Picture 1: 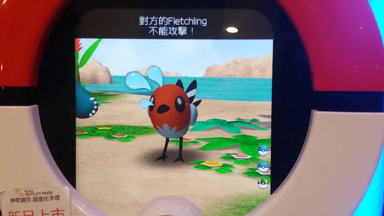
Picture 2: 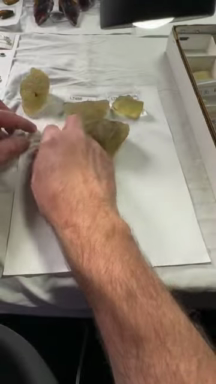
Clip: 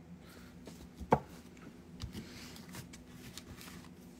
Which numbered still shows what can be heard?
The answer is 2